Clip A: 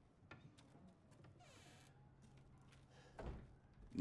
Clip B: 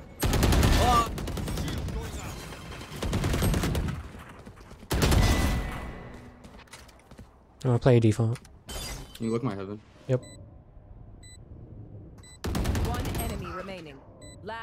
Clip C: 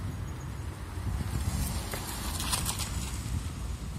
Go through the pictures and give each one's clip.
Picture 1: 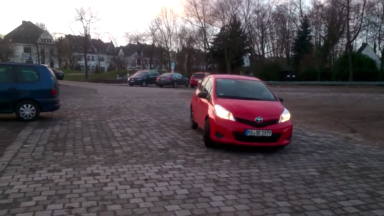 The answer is C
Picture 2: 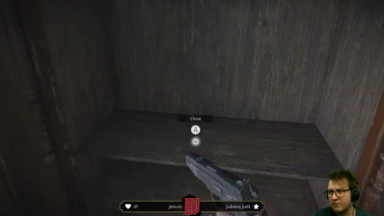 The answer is A